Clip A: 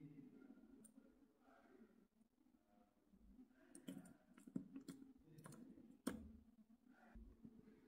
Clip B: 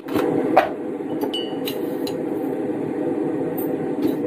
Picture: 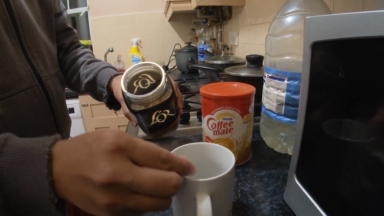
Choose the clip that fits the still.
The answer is B